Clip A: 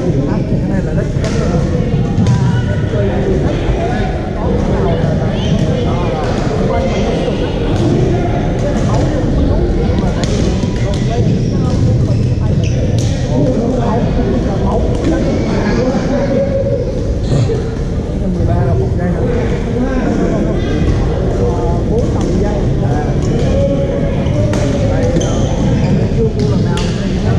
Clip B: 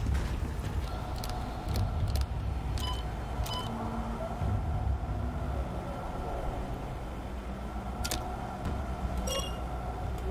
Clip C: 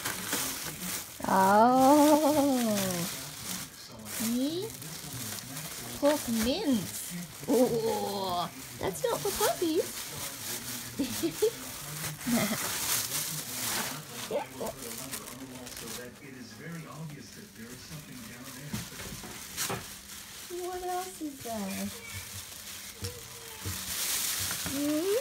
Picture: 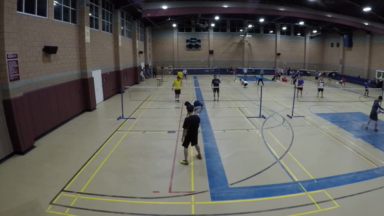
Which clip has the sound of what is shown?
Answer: A